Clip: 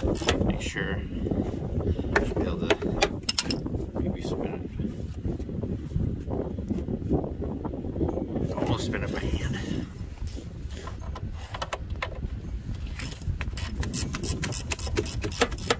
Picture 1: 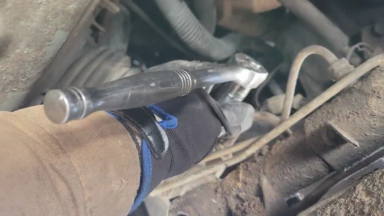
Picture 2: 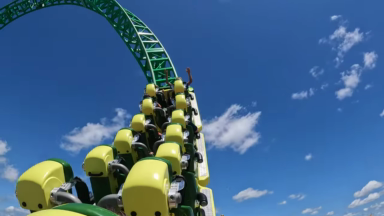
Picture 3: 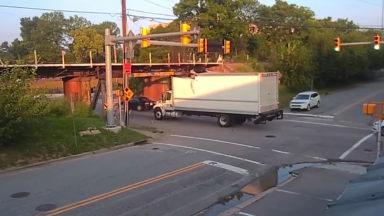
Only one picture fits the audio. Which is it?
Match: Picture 1